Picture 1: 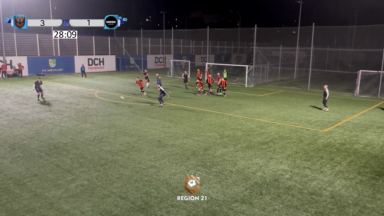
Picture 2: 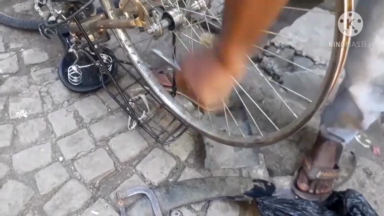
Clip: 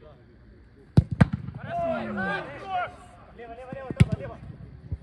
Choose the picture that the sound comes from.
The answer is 1